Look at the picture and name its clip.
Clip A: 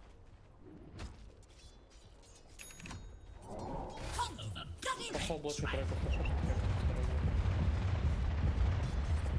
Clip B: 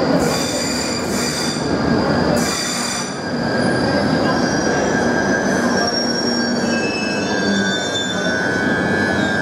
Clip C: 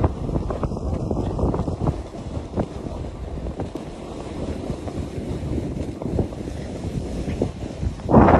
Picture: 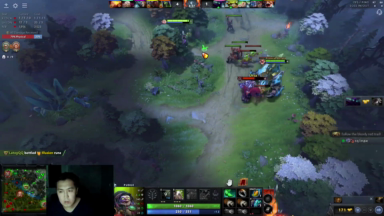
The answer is A